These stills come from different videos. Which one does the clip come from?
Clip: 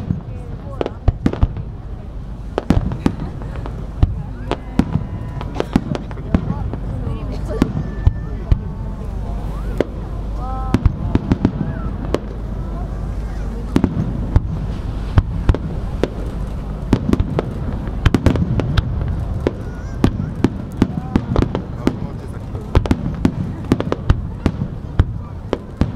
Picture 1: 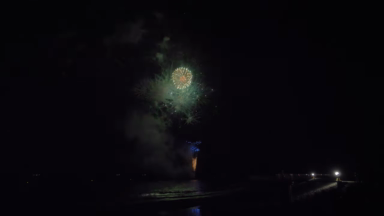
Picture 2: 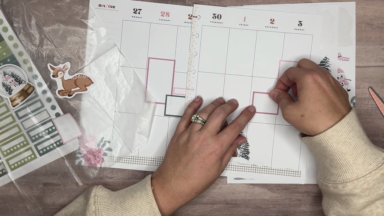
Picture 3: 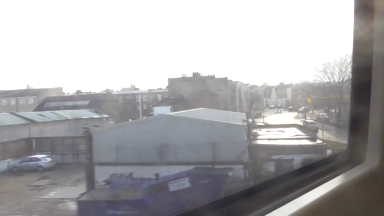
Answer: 1